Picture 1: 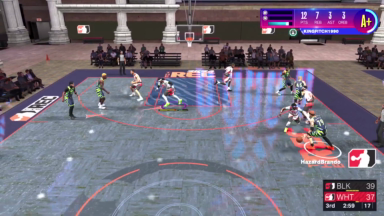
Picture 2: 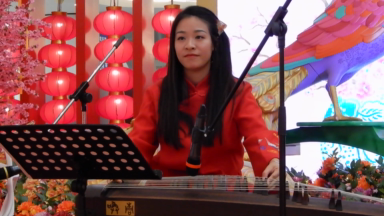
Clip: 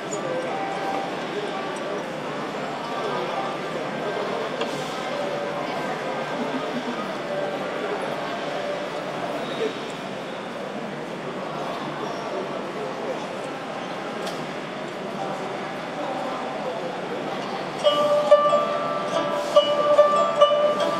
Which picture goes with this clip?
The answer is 2